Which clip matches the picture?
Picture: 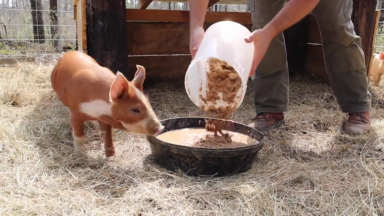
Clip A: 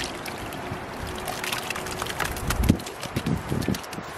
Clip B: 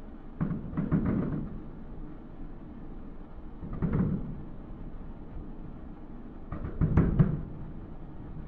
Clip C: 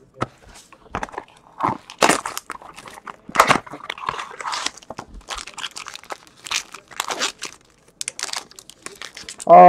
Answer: A